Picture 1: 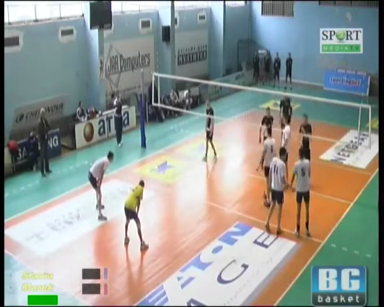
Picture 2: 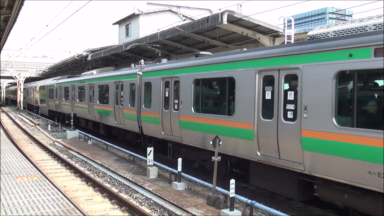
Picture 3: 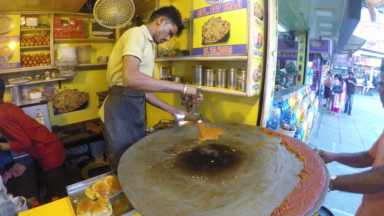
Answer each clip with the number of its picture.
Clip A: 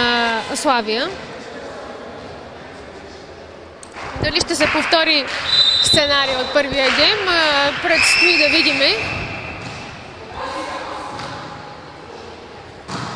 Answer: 1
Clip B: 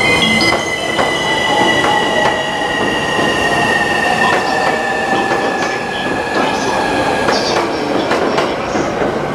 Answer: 2